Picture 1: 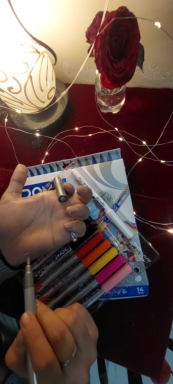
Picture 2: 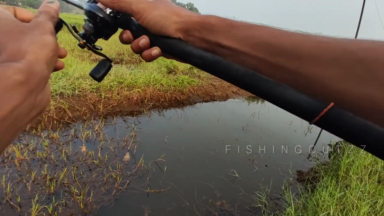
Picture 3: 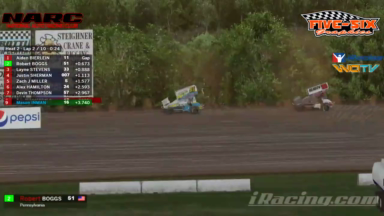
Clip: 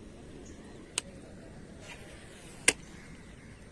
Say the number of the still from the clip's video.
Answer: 2